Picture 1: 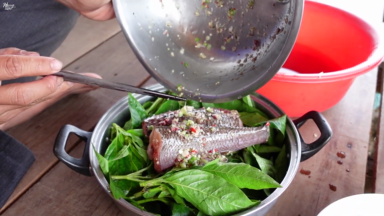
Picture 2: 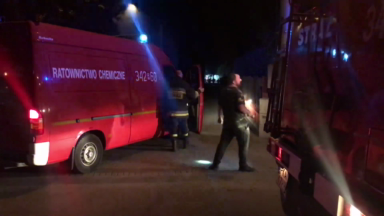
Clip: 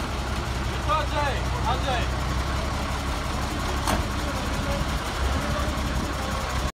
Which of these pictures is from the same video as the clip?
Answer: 2